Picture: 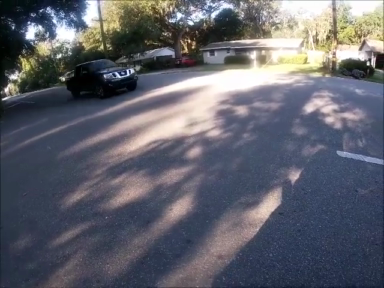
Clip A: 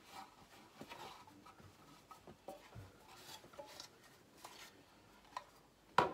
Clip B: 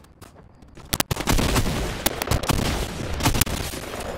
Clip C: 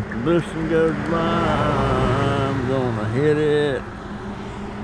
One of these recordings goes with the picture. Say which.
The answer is C